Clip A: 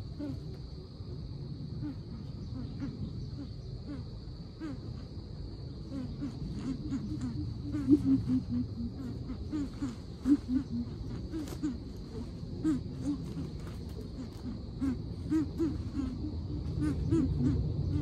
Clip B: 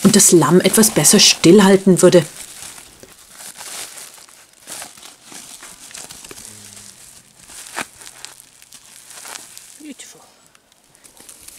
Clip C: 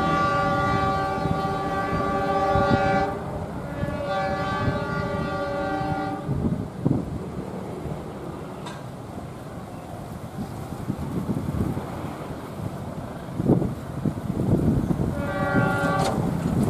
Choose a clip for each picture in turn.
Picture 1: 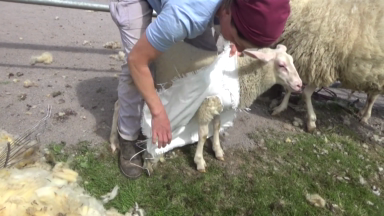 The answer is B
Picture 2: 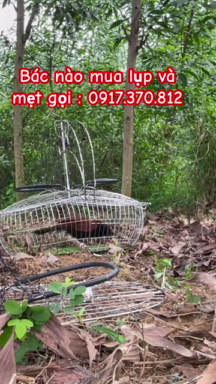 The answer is A